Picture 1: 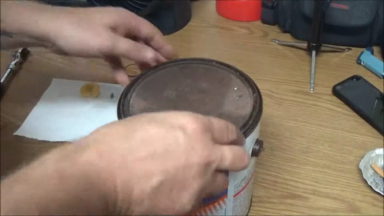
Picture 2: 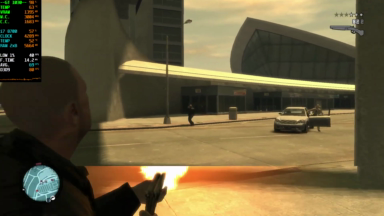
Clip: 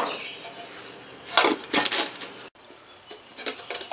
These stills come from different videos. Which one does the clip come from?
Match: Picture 1